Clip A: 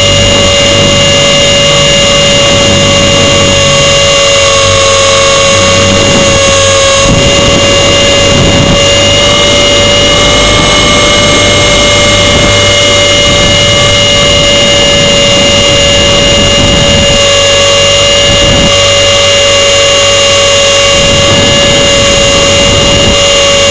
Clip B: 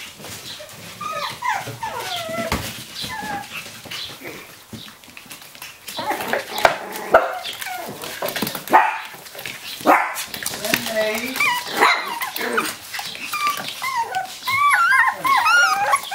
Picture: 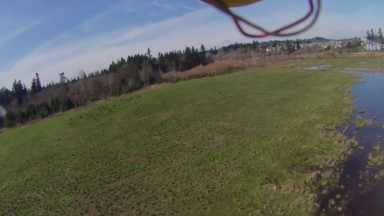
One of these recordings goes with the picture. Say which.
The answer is A